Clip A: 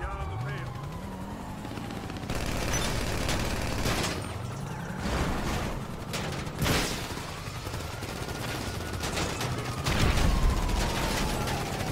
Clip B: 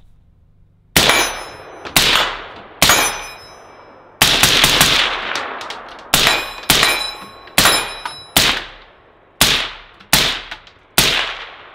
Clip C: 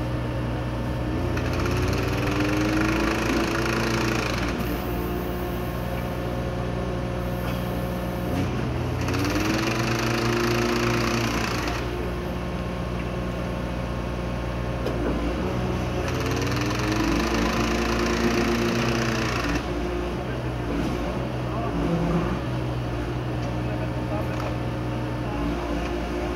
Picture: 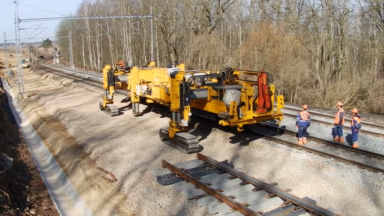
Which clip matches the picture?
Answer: C